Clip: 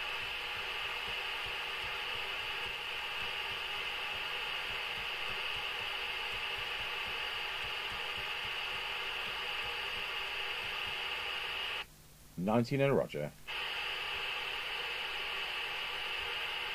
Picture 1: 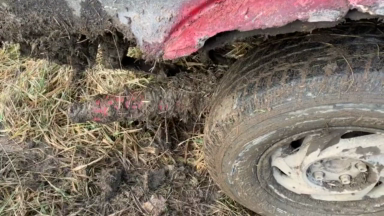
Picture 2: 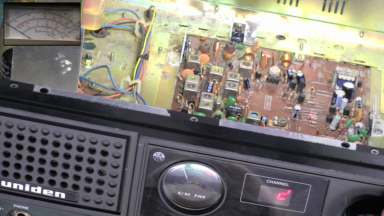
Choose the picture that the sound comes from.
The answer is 2